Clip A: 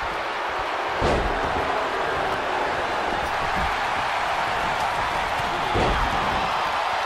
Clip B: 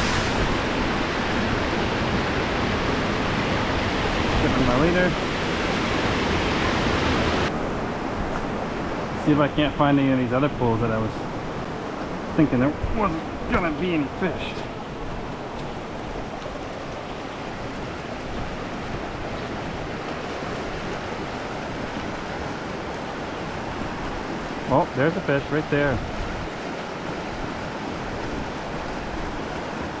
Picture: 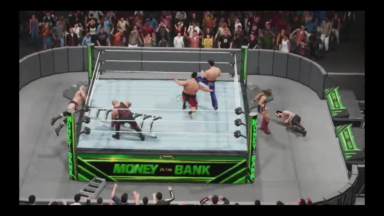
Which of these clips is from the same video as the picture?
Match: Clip A